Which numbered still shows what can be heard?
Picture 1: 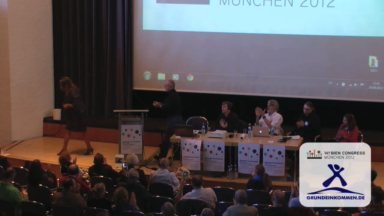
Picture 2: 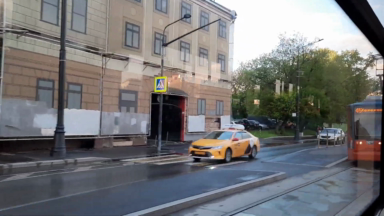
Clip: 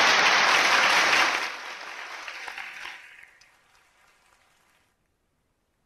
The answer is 1